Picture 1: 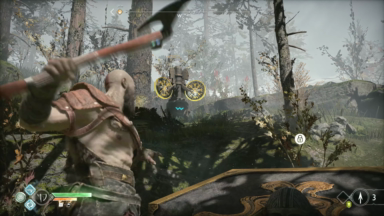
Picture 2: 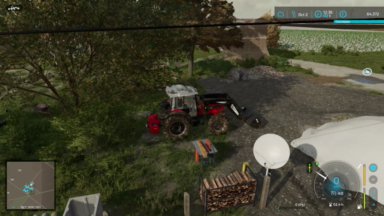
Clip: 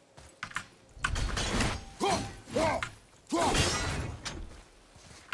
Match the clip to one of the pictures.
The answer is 1